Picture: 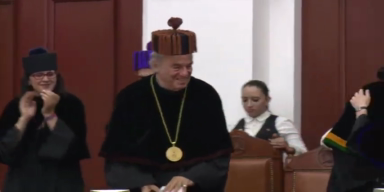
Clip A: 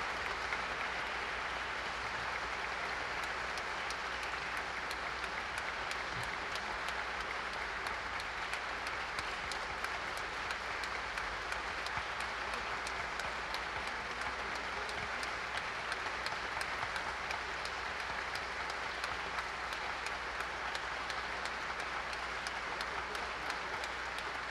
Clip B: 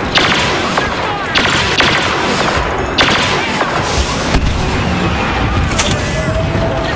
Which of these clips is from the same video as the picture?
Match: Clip A